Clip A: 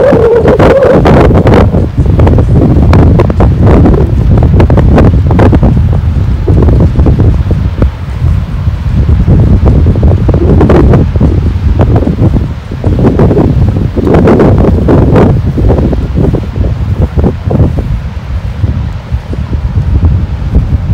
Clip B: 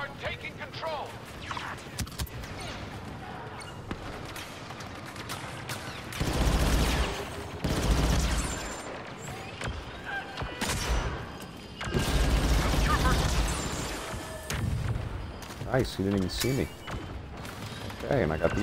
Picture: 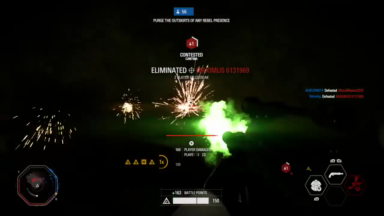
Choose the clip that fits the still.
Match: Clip B